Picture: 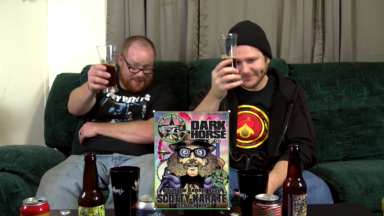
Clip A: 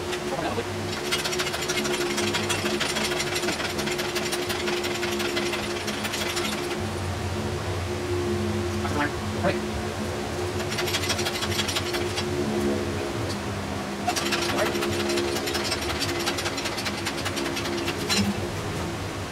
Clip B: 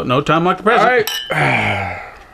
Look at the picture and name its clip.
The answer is B